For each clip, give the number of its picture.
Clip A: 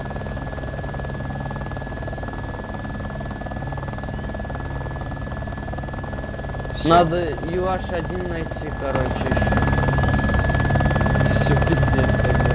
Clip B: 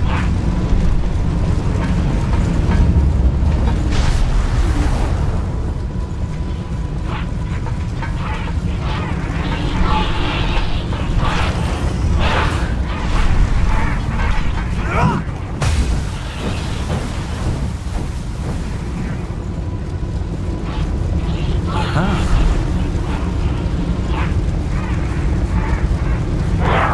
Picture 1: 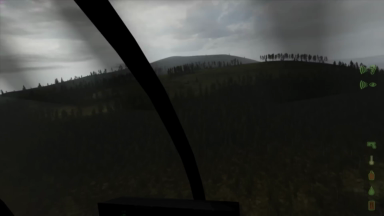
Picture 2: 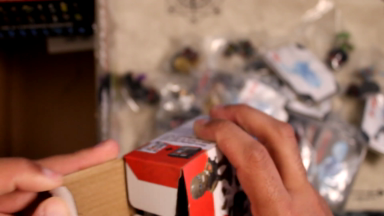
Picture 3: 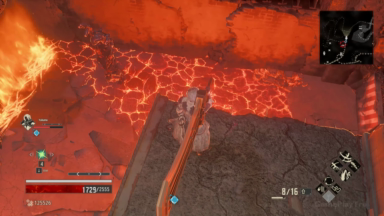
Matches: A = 1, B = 3